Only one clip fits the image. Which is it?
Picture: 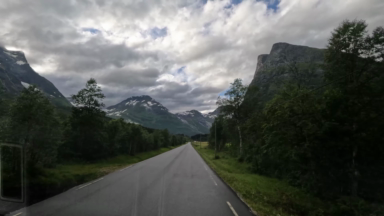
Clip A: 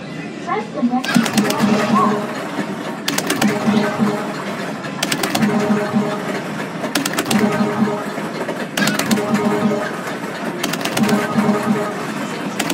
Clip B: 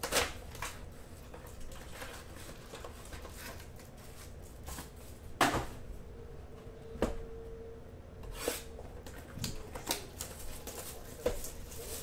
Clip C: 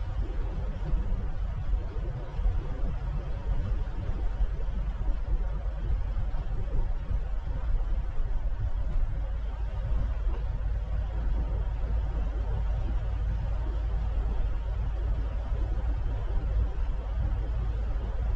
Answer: C